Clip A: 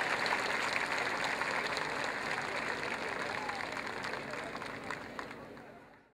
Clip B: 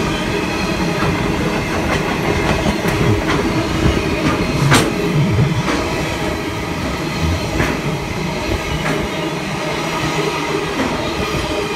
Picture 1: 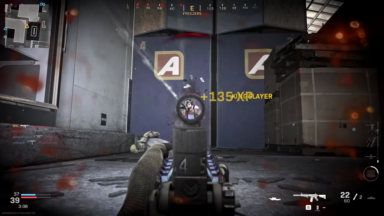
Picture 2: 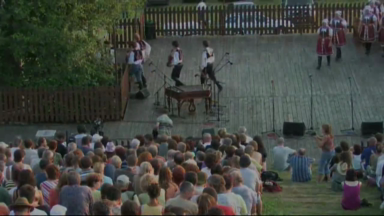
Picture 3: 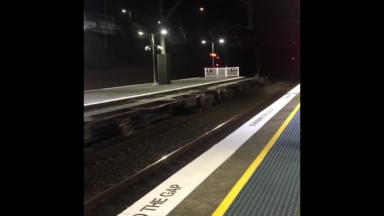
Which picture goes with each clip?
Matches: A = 2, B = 3